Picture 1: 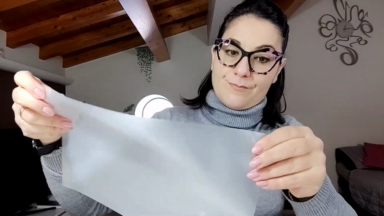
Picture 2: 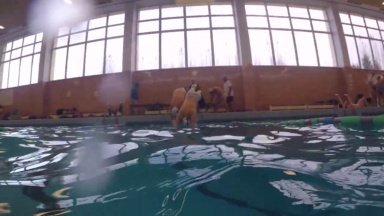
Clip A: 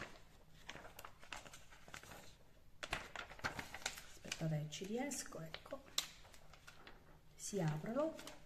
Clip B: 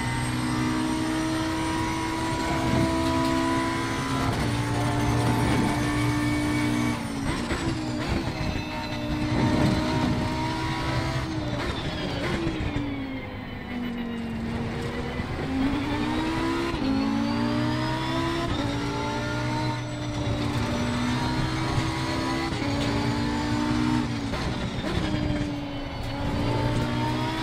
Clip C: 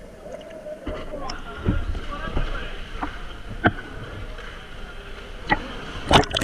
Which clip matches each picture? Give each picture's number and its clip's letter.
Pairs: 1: A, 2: C